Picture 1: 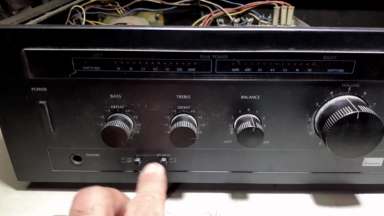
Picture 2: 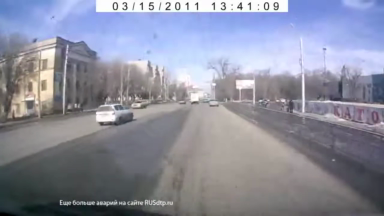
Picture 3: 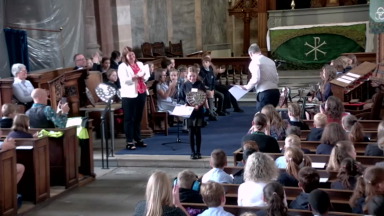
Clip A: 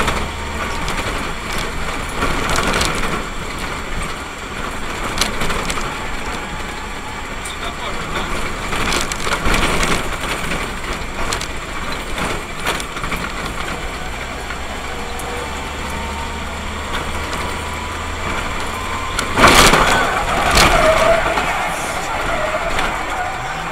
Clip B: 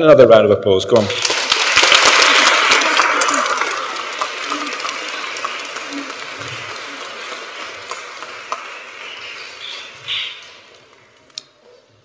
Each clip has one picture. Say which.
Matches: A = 2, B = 3